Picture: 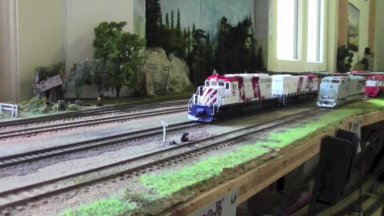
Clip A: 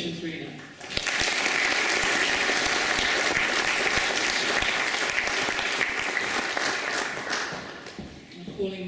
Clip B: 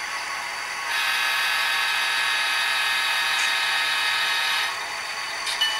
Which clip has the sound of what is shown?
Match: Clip B